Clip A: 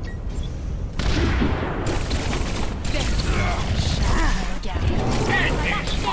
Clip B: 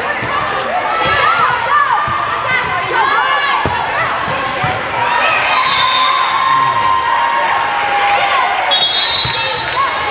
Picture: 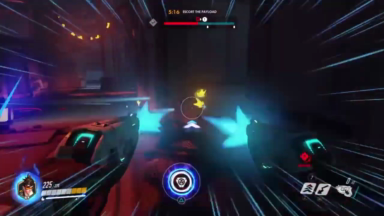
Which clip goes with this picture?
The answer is A